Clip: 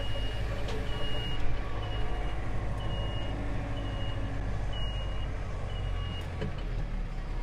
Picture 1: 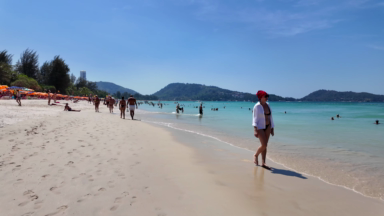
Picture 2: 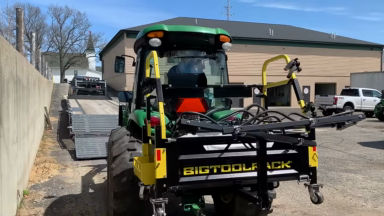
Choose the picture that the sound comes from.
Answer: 2